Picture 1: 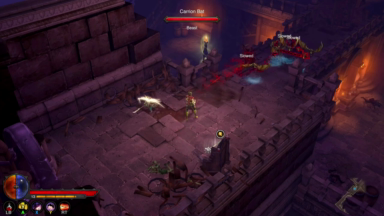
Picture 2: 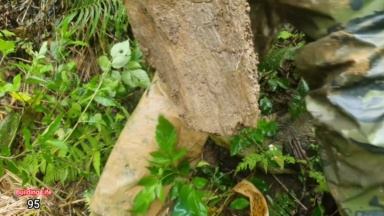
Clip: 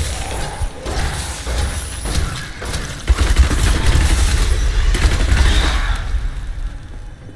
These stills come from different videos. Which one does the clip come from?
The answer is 1